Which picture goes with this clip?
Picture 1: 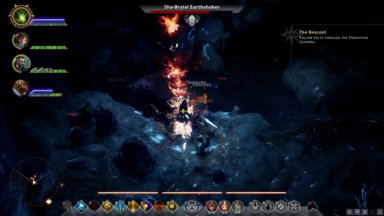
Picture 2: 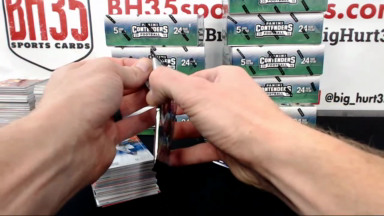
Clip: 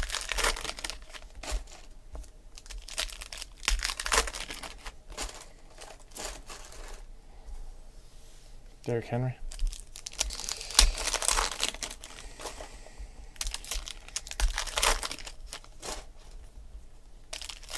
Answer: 2